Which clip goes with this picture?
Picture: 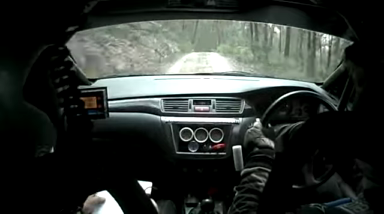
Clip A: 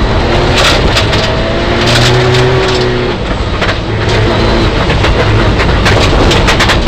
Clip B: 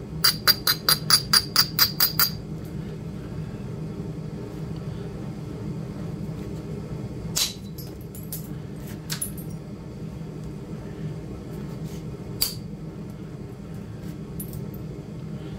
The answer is A